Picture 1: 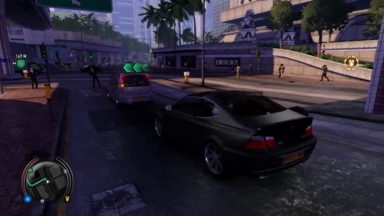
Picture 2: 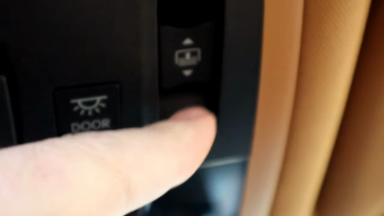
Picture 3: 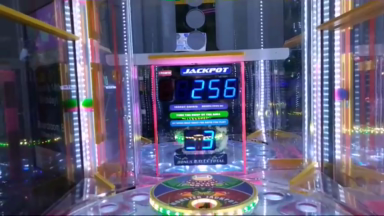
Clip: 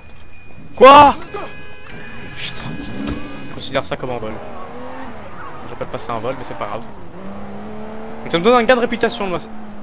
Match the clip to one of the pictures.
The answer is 1